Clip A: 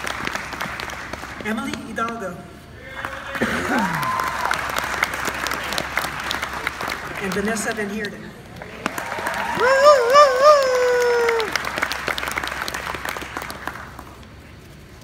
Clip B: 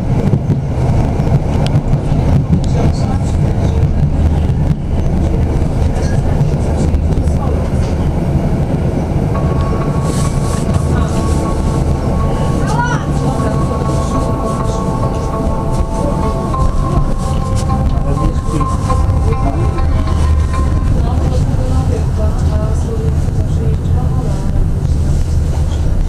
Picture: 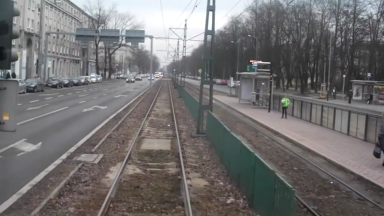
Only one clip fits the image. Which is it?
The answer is B